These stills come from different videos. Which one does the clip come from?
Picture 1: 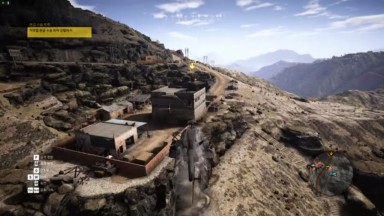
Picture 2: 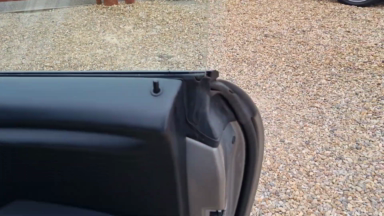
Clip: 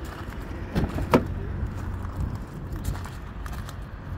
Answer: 2